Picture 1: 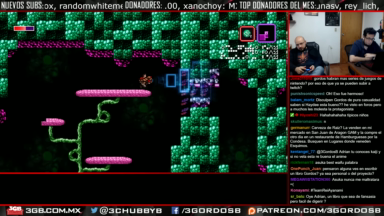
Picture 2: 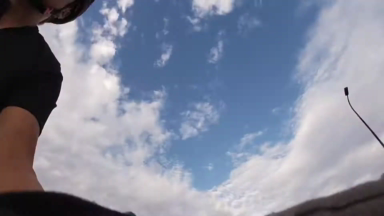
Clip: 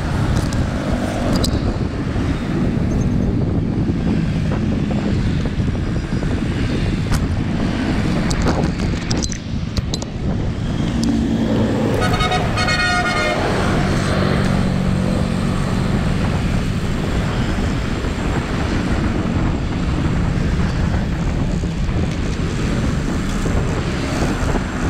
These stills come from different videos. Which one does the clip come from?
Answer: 2